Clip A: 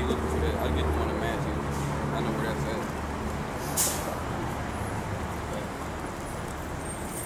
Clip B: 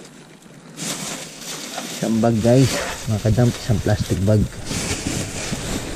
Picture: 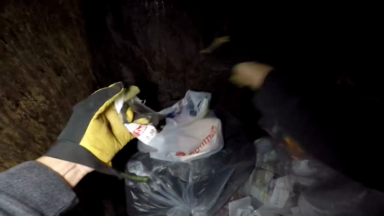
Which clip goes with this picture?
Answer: B